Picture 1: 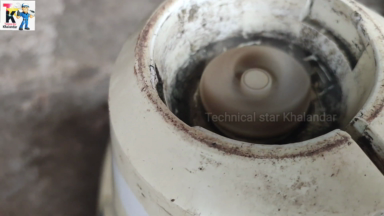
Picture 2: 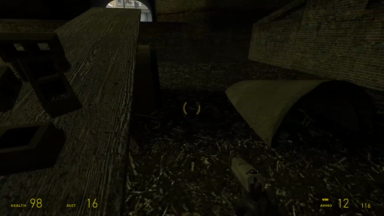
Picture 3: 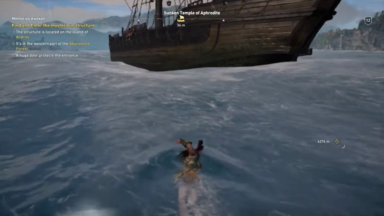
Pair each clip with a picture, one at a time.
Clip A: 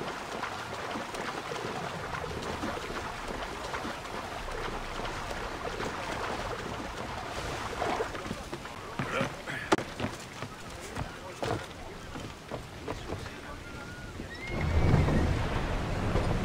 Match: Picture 3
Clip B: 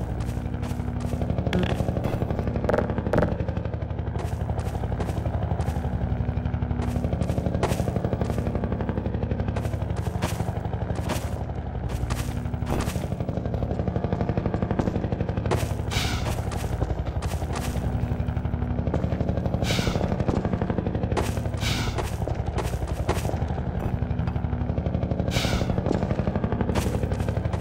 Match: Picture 2